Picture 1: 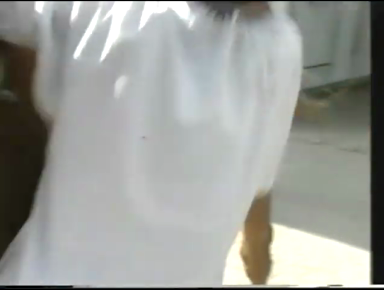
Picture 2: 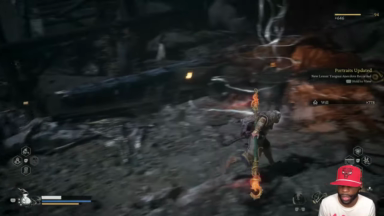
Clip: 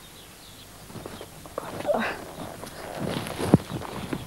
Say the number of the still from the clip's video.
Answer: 1